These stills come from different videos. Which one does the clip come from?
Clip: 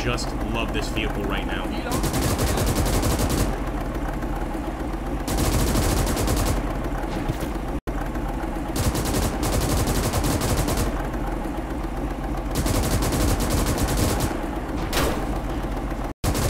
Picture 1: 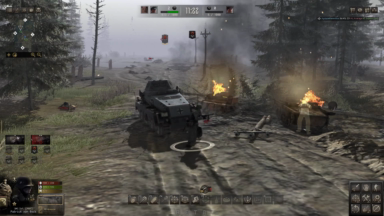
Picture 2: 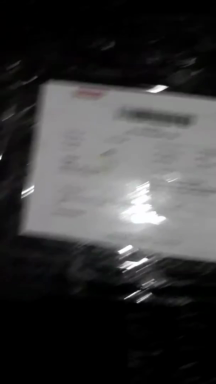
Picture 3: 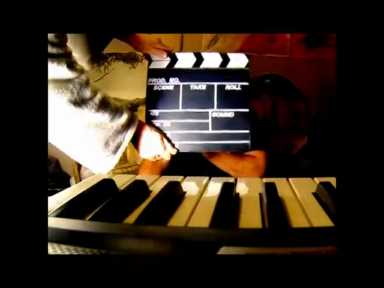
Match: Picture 1